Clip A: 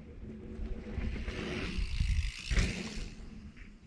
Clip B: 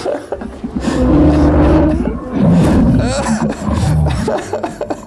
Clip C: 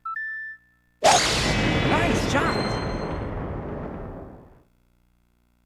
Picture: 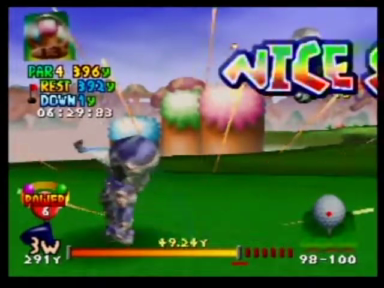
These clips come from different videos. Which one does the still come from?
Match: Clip C